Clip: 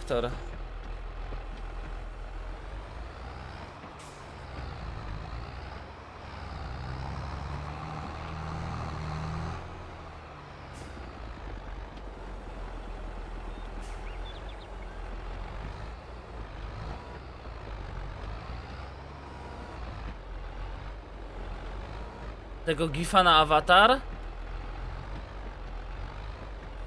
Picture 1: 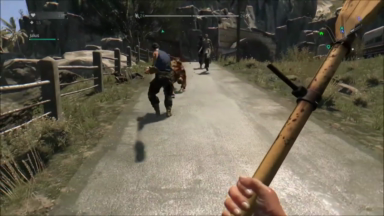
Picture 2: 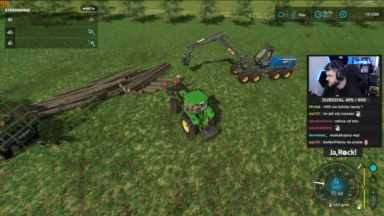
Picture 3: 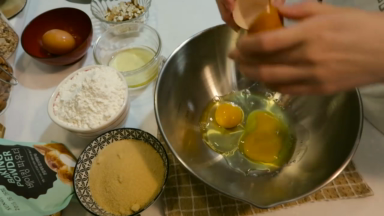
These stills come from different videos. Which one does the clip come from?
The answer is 2